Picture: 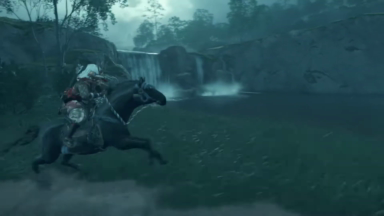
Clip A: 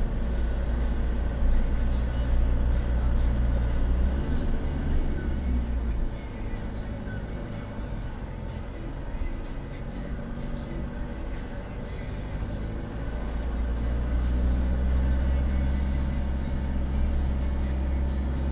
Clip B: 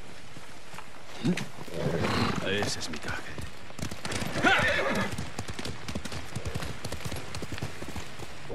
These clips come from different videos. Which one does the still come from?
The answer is B